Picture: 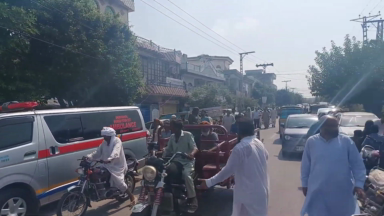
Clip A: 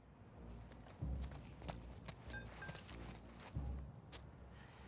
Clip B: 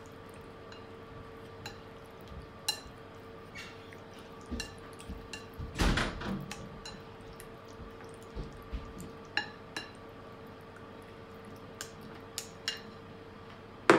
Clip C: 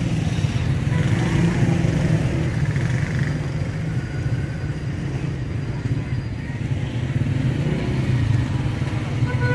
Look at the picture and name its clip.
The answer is C